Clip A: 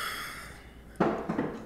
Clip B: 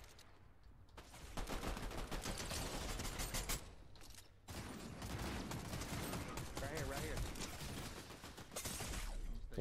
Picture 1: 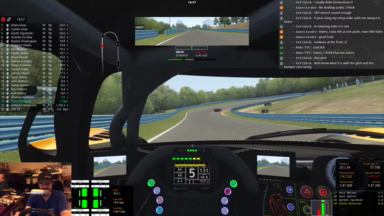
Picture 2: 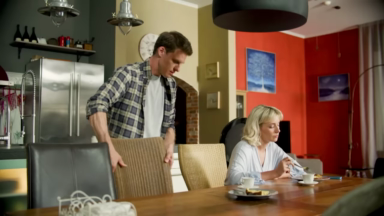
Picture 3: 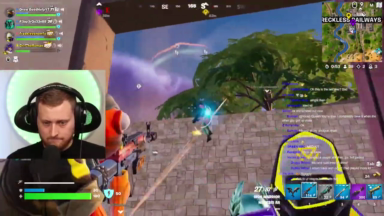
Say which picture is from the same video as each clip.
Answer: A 2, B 3